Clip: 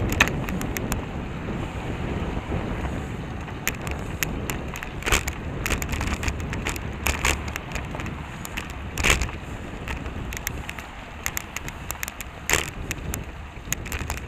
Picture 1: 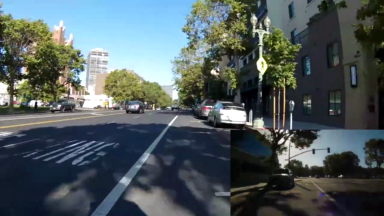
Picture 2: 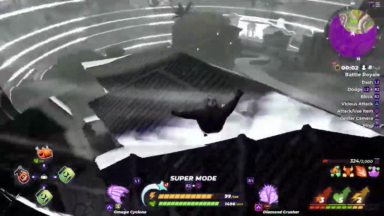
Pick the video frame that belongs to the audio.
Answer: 1